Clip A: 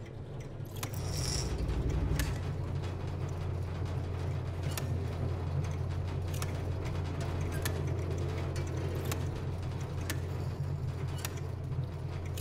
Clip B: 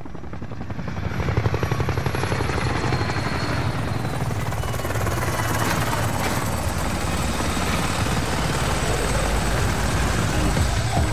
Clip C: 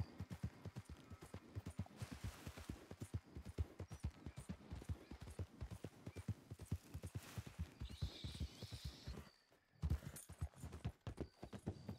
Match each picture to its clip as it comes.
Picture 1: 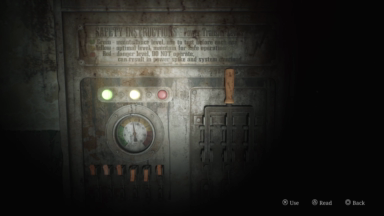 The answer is A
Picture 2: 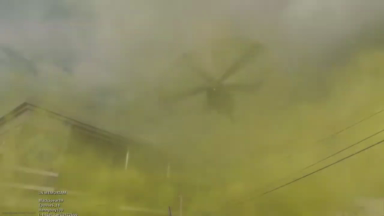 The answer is B